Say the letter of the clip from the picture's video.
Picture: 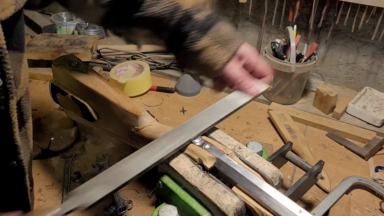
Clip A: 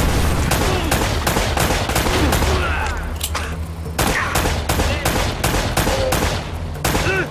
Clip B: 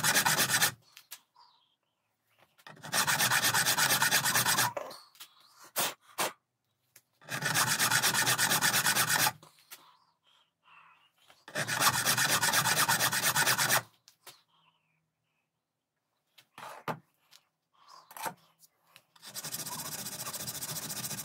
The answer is B